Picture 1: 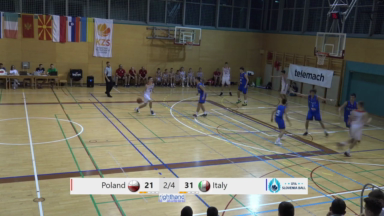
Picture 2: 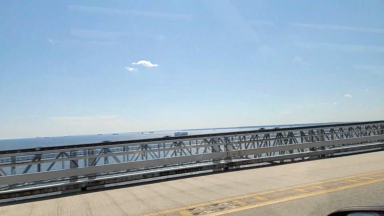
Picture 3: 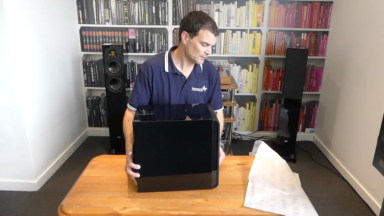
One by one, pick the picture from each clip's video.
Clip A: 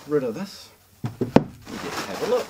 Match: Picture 3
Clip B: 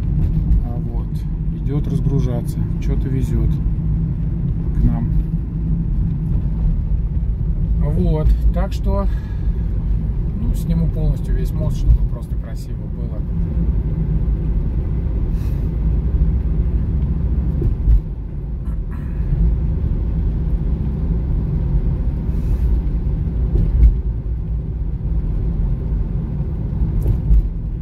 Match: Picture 2